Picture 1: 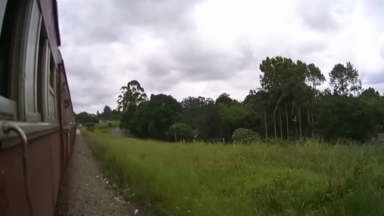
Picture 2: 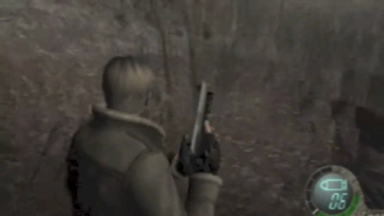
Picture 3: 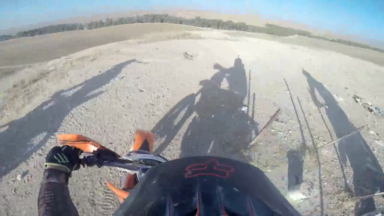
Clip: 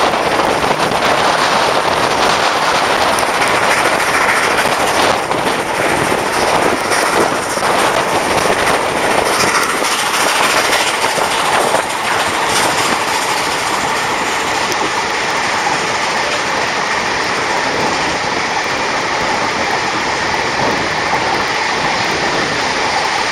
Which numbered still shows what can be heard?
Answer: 1